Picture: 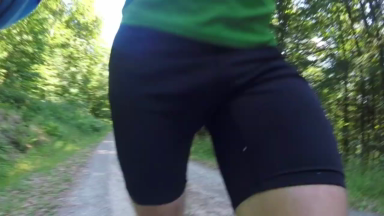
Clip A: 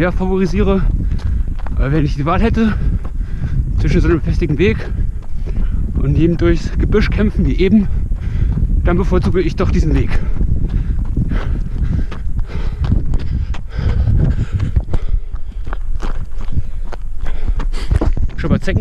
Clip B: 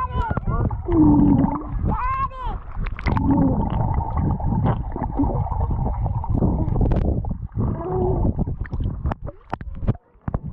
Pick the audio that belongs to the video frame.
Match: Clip A